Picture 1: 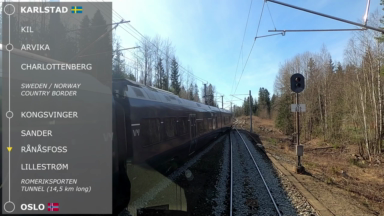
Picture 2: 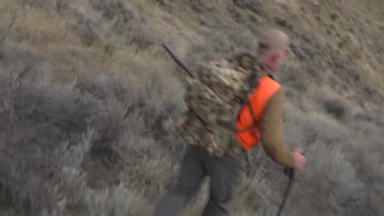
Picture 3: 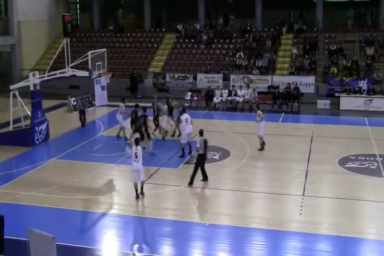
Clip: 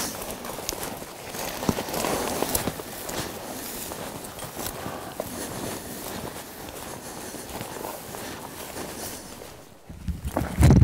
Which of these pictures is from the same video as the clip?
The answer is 2